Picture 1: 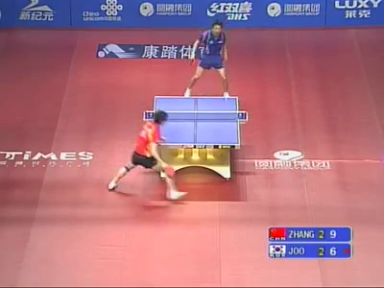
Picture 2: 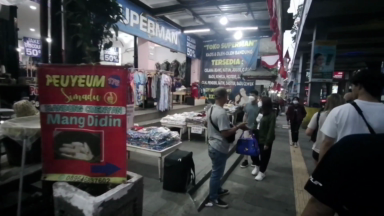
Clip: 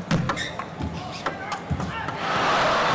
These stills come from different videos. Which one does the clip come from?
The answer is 1